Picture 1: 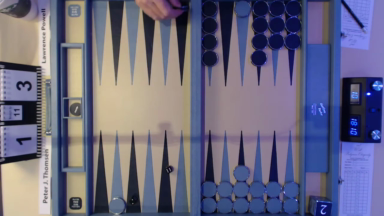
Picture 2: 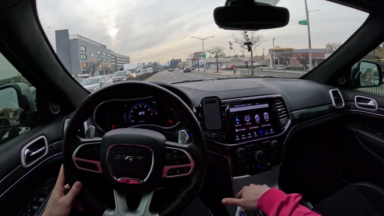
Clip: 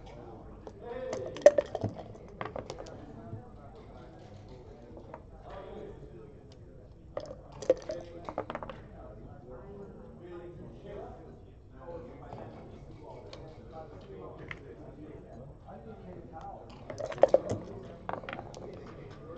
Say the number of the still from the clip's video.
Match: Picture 1